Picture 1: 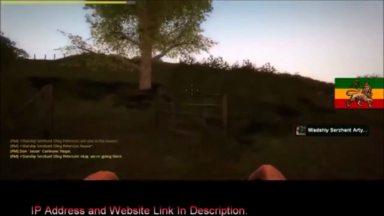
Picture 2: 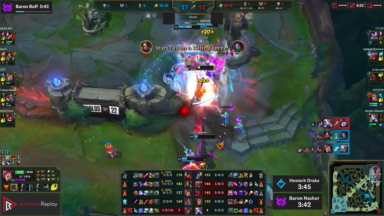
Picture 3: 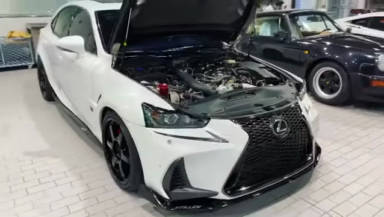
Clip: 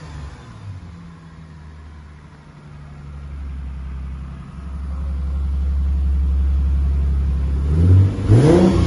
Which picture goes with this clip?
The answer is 3